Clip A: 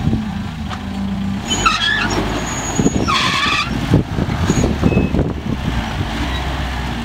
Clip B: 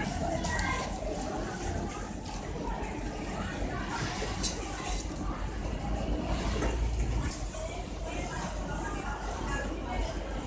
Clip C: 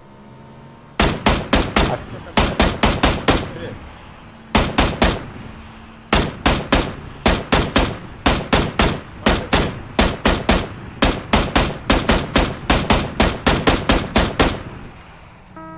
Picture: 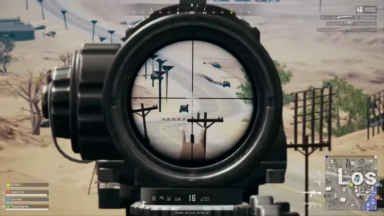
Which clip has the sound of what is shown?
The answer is C